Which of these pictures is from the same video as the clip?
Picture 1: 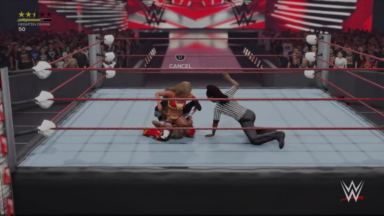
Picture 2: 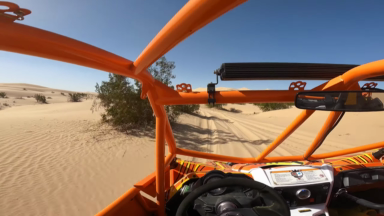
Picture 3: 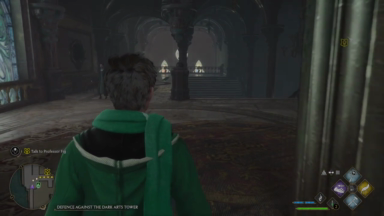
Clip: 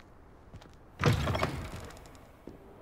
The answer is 3